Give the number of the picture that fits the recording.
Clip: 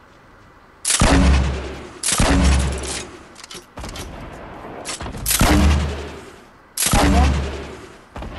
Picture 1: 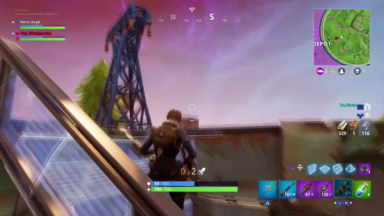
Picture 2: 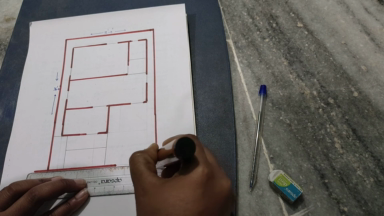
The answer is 1